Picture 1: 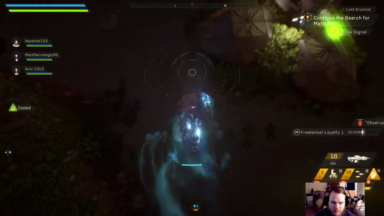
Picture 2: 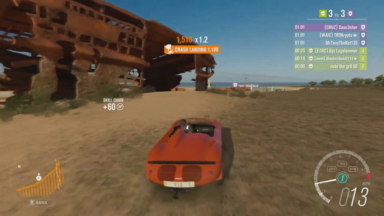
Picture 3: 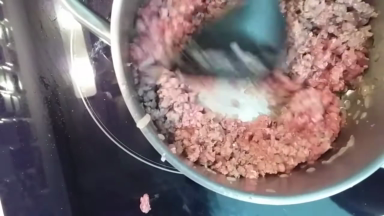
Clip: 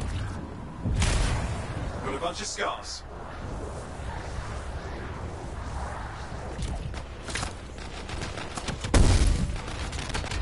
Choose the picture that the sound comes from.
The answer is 1